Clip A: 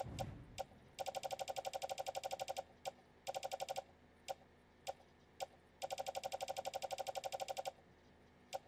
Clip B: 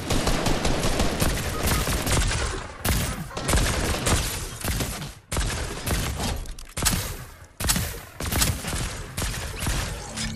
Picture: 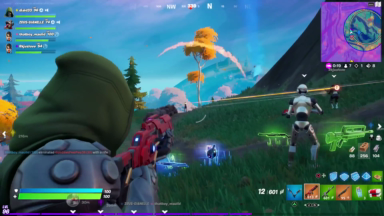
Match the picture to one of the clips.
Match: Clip B